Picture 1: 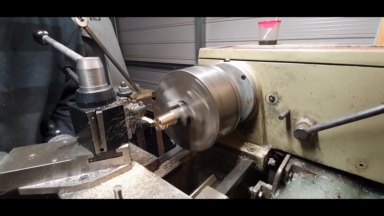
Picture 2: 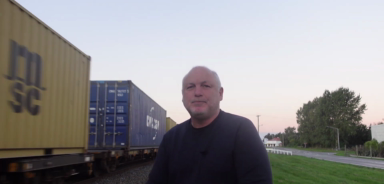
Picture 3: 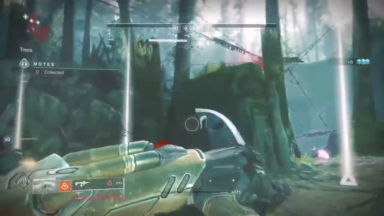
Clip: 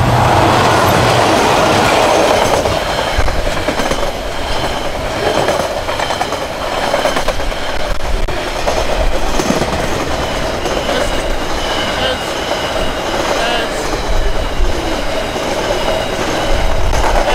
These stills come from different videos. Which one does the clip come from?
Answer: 2